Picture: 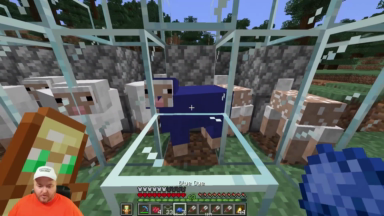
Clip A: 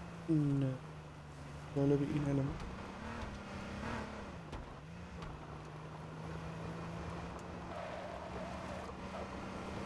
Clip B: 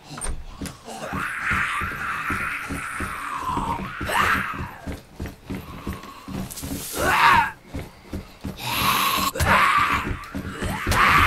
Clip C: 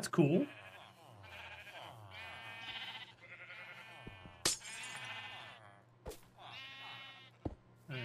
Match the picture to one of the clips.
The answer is C